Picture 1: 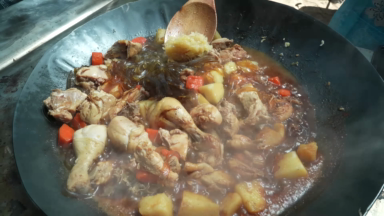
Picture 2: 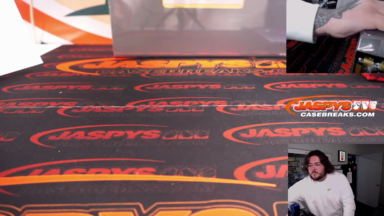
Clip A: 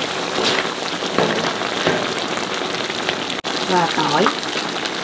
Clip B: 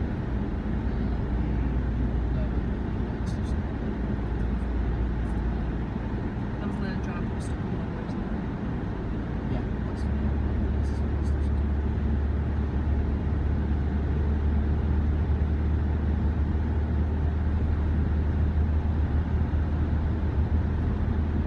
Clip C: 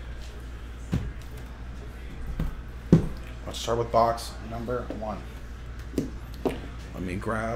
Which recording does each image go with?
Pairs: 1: A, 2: C